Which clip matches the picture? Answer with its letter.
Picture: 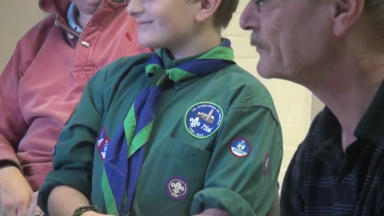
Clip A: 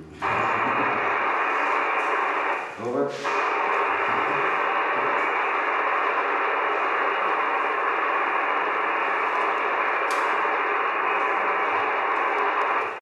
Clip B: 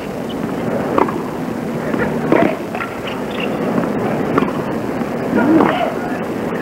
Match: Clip A